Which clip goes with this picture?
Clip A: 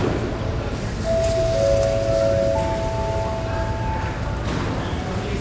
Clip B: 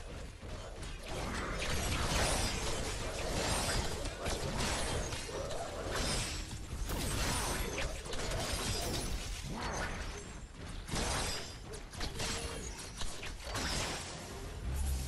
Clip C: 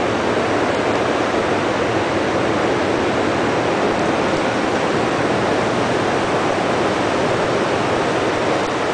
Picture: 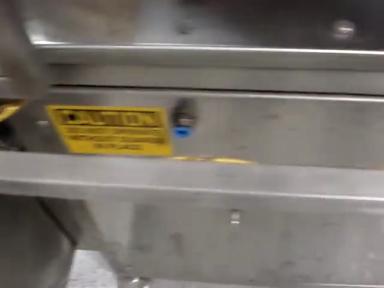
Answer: C